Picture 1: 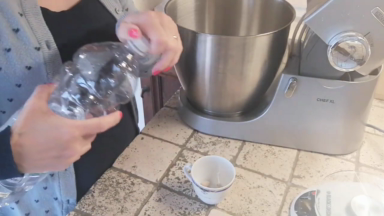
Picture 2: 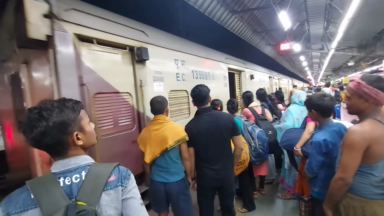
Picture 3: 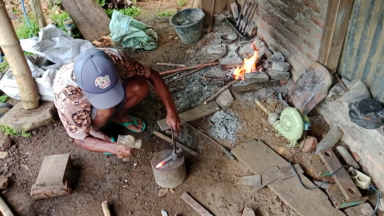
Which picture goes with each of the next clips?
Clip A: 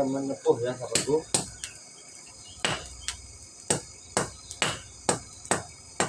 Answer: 3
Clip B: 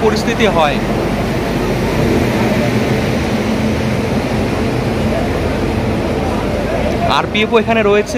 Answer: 2